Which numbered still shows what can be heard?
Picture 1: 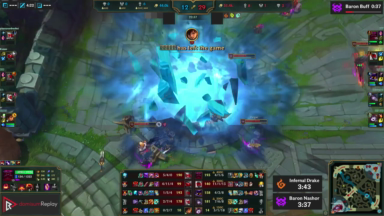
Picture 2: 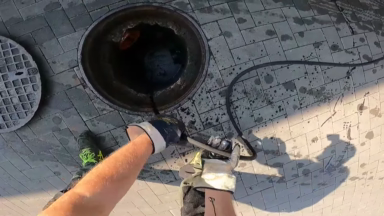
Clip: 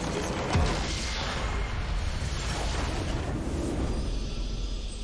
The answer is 1